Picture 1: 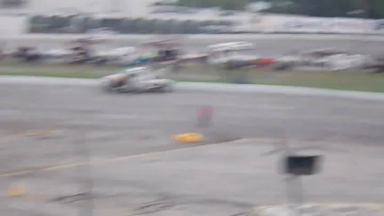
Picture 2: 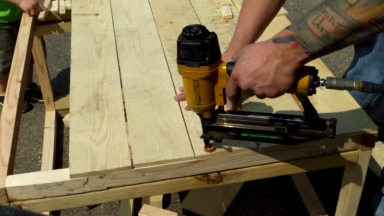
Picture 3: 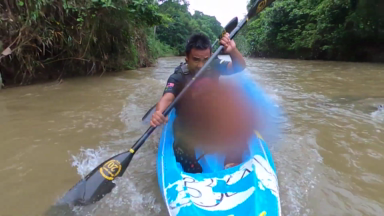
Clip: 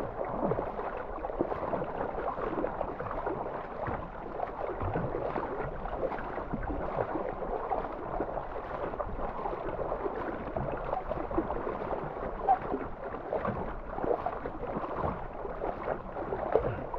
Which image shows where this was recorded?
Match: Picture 3